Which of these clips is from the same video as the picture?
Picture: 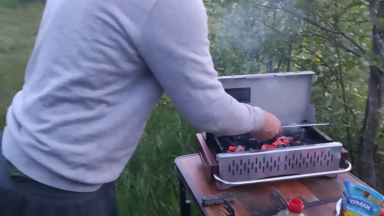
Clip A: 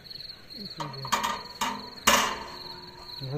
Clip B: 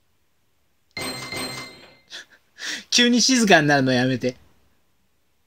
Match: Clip A